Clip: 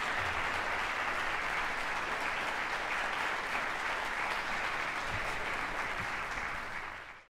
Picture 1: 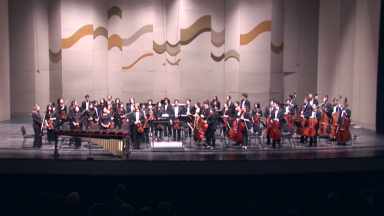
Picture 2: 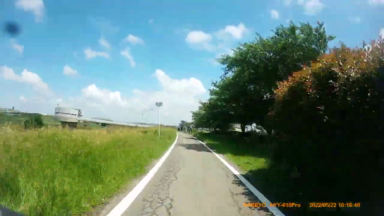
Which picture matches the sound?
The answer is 1